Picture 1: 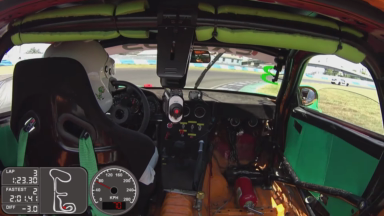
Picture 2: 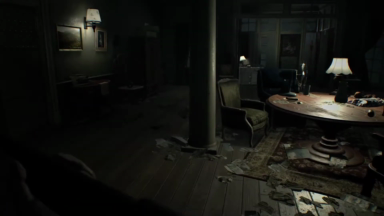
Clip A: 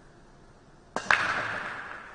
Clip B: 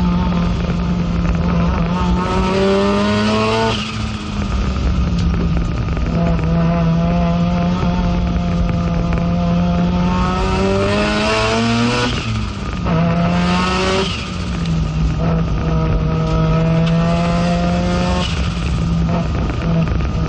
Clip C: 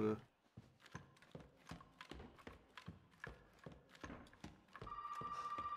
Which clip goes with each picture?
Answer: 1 B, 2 C